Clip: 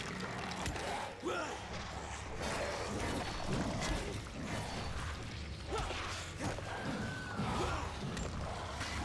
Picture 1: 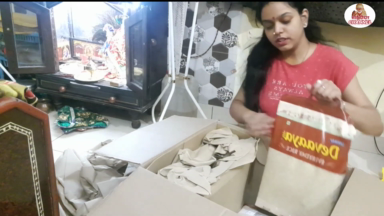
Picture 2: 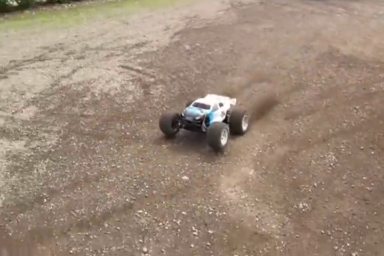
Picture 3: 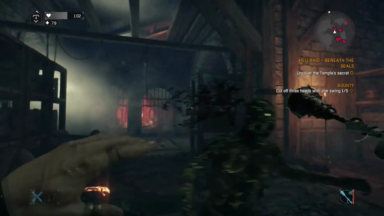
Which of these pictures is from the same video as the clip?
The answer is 3